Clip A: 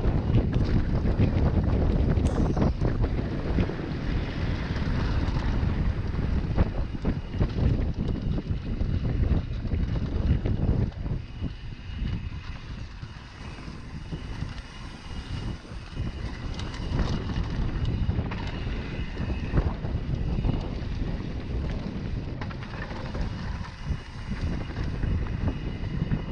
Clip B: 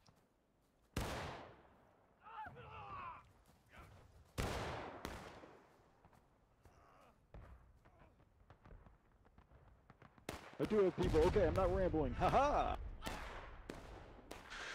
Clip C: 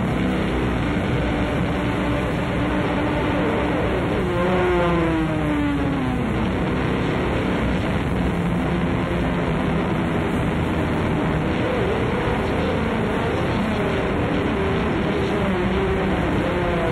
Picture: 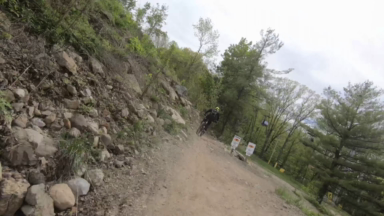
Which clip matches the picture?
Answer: A